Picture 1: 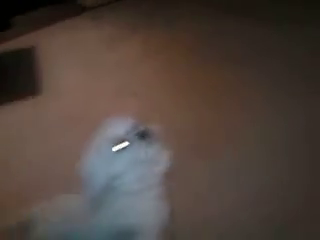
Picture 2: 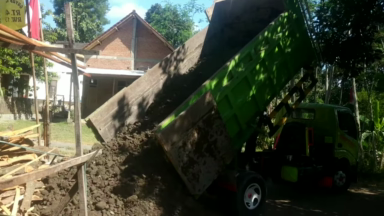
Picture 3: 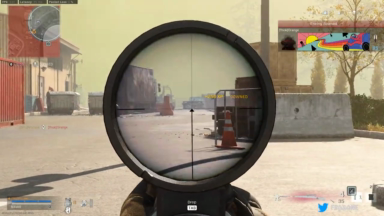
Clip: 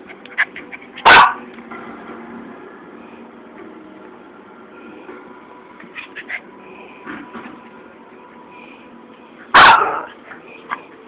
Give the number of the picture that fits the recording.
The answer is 1